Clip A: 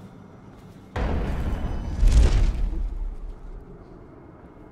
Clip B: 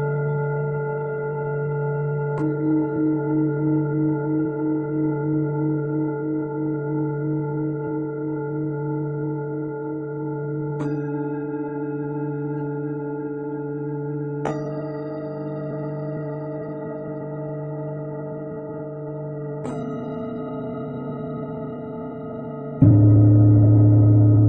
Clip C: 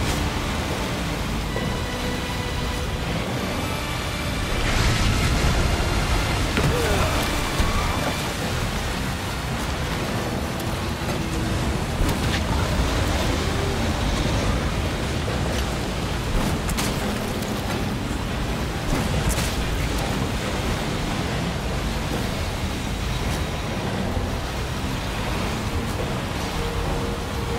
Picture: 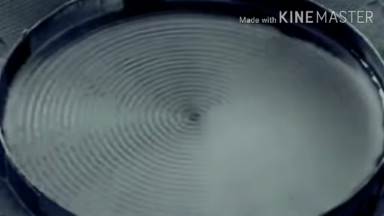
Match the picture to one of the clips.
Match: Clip B